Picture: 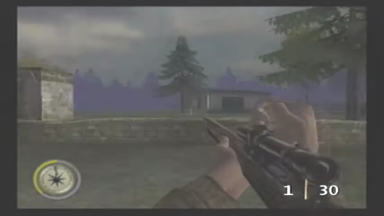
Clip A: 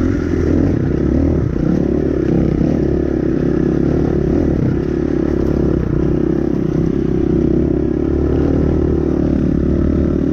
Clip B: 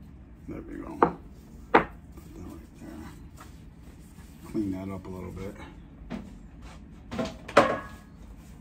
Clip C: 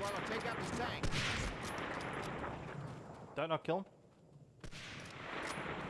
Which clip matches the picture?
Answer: C